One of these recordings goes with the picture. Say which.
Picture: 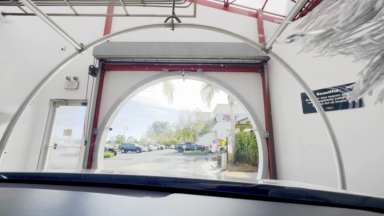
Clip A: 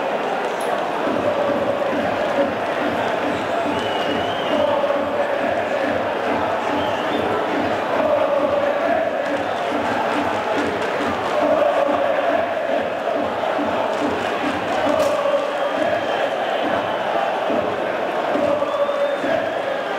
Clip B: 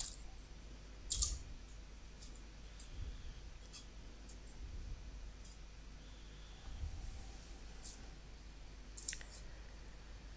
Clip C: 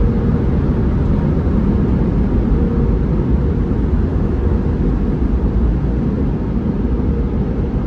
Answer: C